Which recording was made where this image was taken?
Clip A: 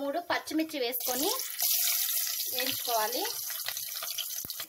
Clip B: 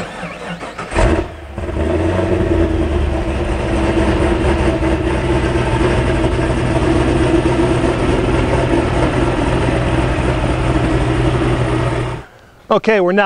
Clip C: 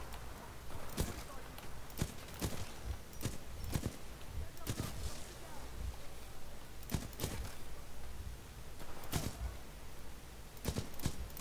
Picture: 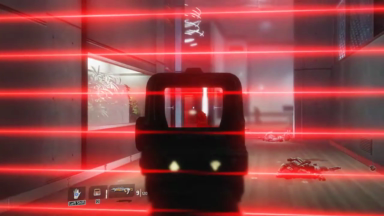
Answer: C